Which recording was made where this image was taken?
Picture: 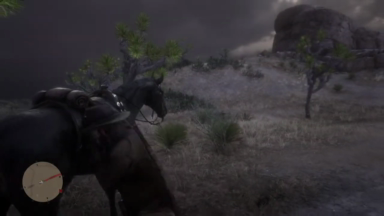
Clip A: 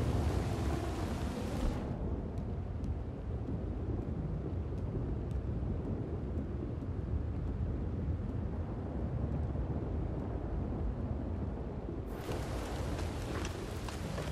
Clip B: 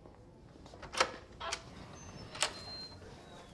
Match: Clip A